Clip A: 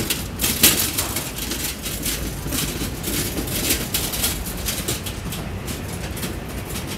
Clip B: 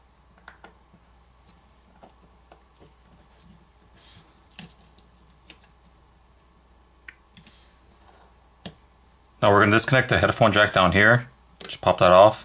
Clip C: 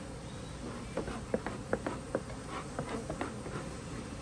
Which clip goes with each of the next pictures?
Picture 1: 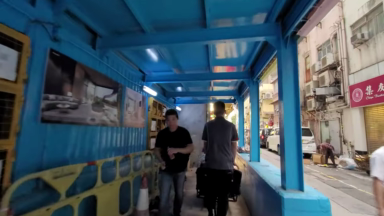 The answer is A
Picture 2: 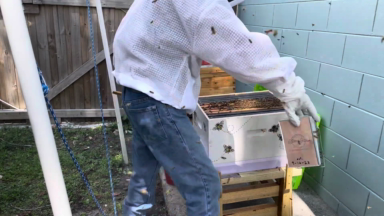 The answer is C